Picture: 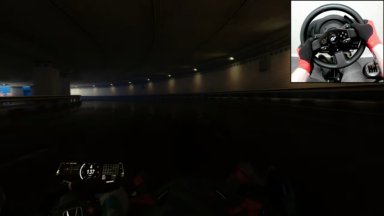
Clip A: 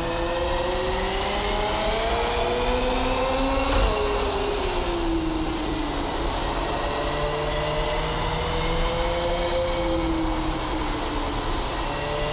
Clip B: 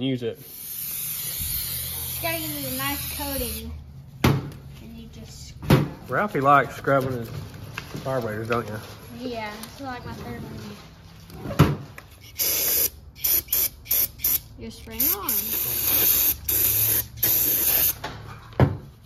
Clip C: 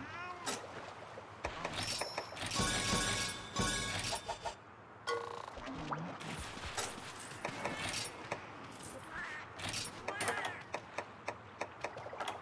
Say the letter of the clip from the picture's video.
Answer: A